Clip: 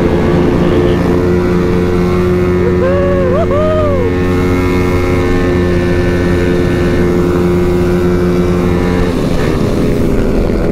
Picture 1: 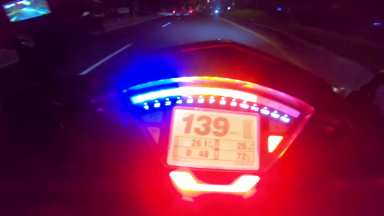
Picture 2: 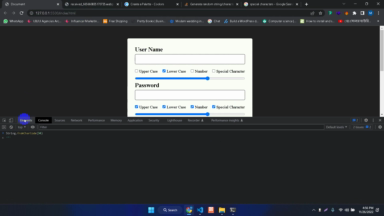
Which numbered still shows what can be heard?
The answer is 1